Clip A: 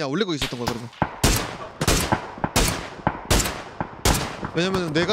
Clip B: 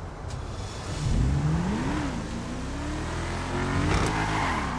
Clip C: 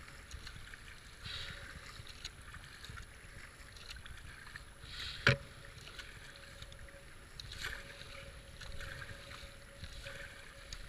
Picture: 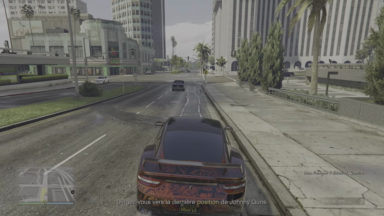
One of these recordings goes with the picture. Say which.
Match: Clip B